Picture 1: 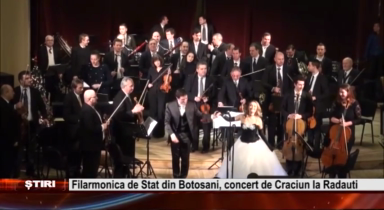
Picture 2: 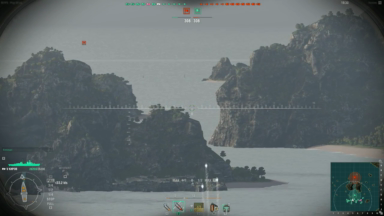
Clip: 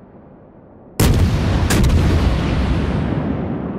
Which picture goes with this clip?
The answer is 2